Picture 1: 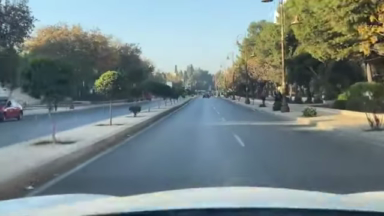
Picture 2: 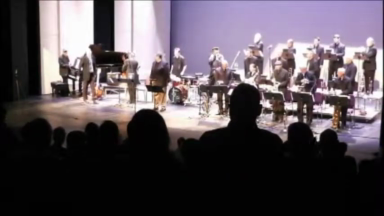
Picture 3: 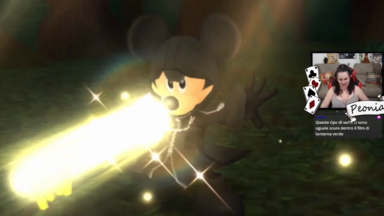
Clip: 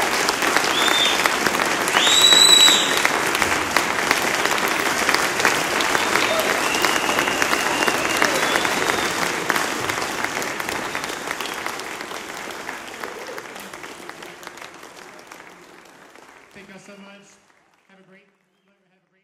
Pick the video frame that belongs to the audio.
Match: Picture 2